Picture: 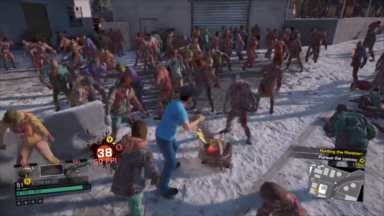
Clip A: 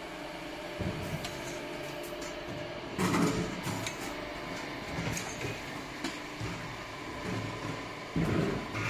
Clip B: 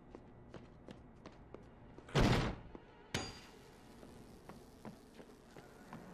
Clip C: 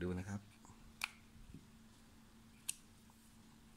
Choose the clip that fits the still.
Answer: B